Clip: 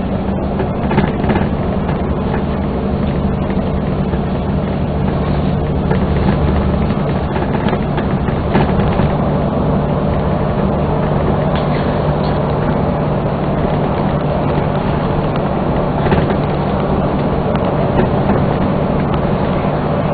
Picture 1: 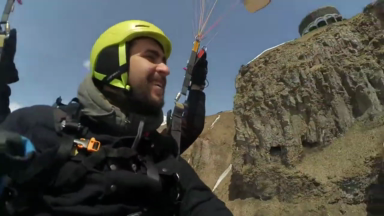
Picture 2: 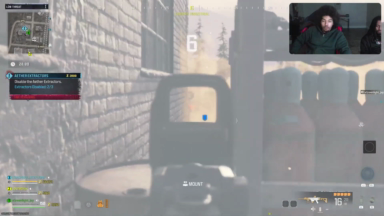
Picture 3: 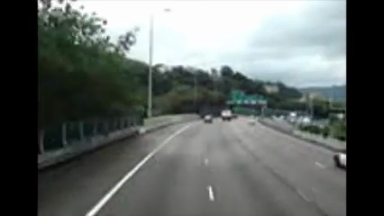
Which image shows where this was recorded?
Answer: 3